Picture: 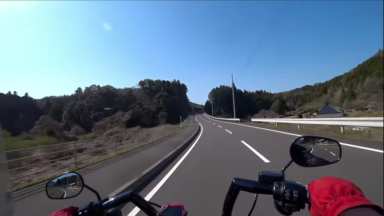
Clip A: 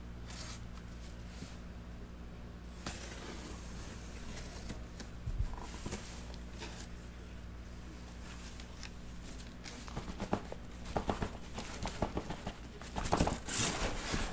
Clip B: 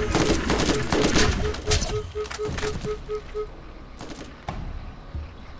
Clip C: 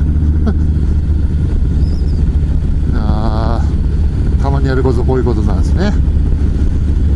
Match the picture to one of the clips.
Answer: C